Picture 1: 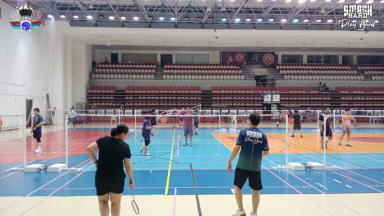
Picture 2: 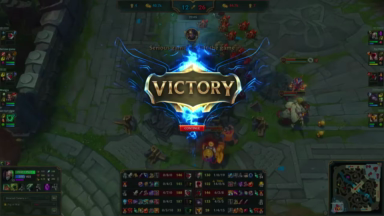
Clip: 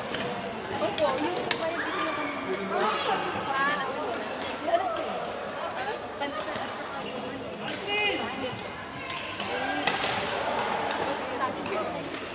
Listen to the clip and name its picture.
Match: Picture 1